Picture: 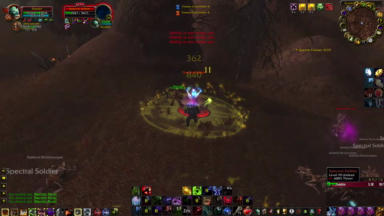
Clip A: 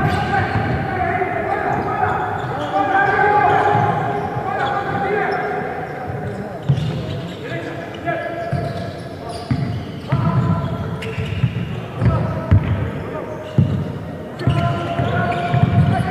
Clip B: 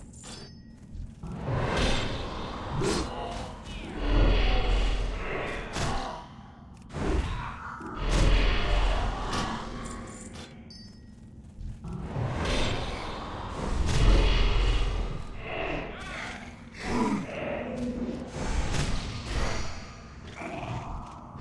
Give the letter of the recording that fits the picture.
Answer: B